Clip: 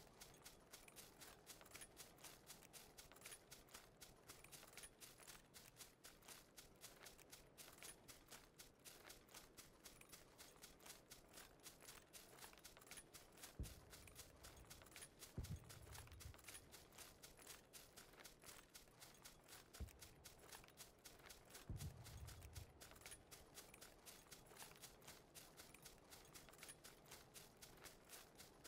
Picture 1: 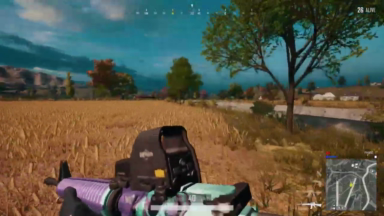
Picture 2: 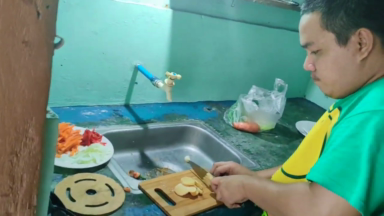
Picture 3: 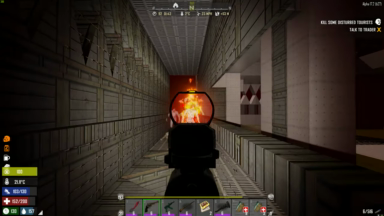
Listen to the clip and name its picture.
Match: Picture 1